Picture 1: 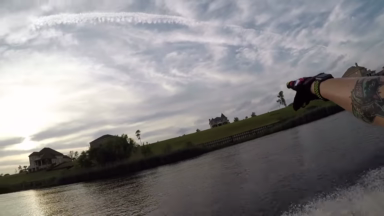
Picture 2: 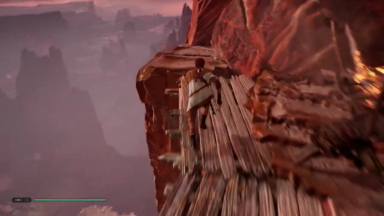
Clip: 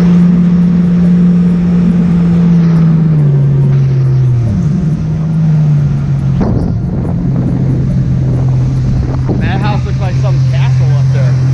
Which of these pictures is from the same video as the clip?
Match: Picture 1